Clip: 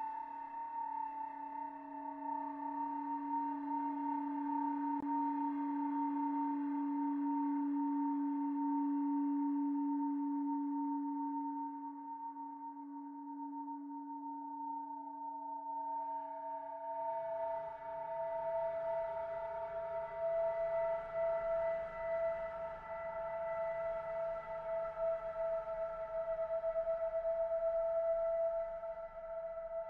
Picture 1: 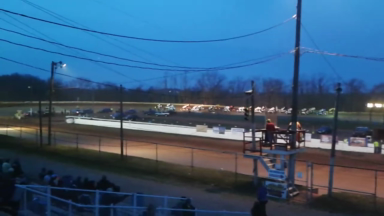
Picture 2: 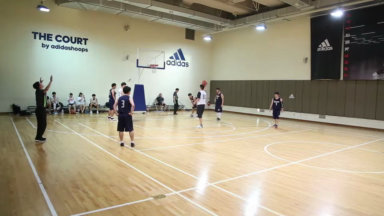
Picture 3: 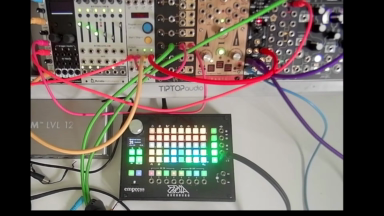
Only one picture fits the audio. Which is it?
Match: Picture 3